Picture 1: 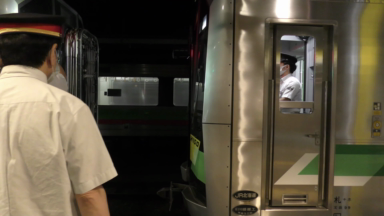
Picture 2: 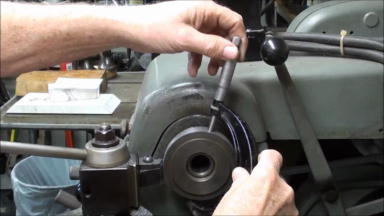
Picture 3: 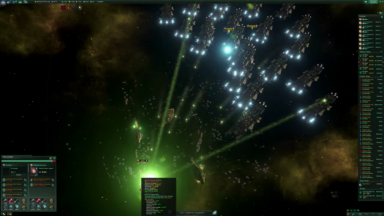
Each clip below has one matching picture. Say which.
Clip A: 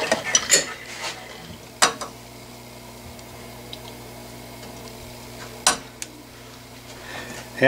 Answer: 2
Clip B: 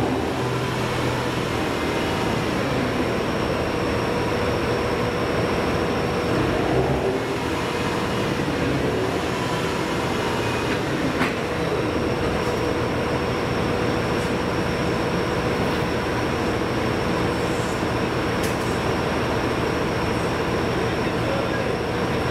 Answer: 1